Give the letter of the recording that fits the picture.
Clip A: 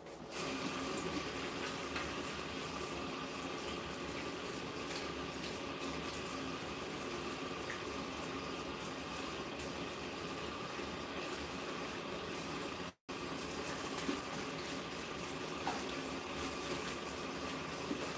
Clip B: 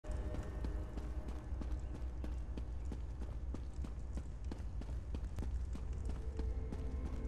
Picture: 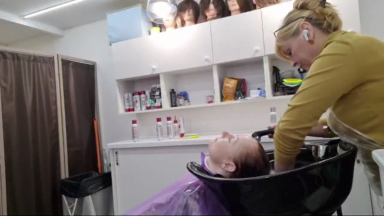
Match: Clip A